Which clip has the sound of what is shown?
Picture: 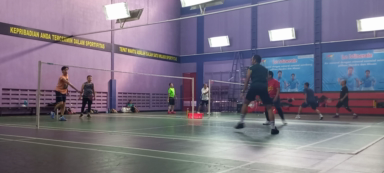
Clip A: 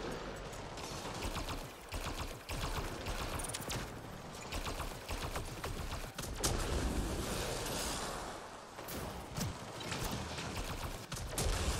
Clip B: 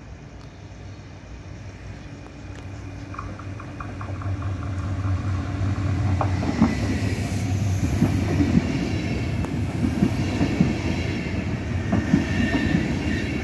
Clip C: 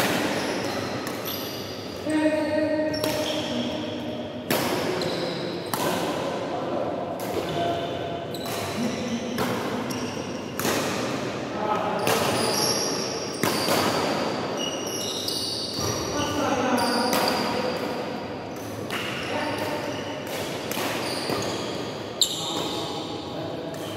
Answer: C